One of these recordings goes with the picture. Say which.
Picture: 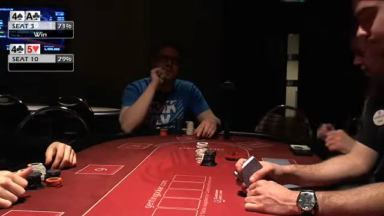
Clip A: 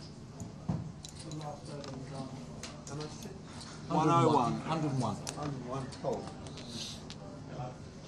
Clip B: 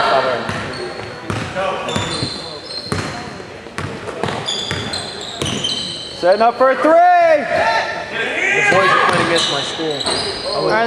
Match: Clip A